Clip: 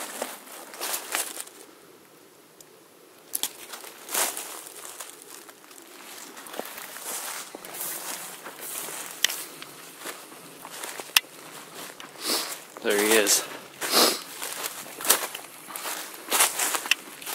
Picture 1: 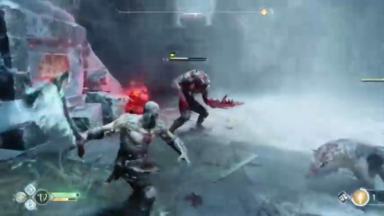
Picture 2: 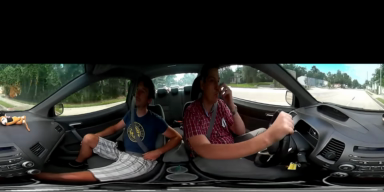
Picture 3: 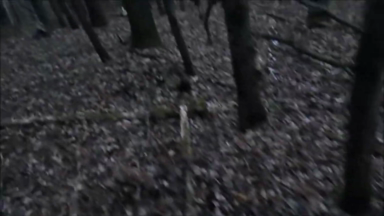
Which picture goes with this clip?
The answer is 3